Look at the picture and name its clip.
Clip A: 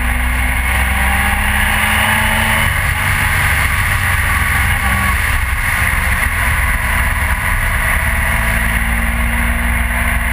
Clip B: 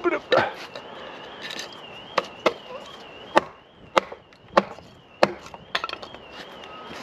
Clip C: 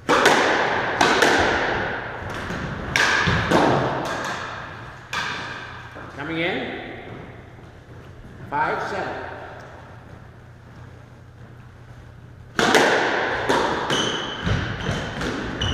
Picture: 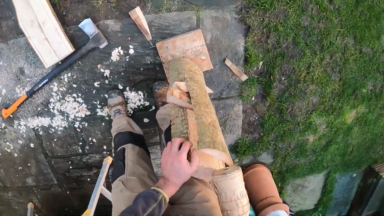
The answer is B